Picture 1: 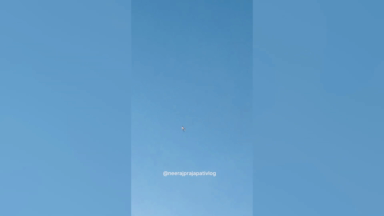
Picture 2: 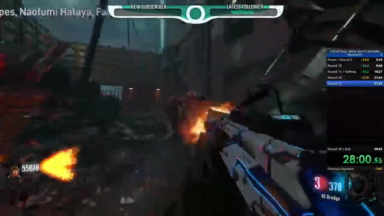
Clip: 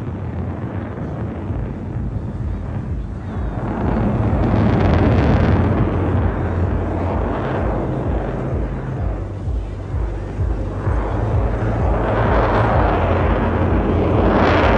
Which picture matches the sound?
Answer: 1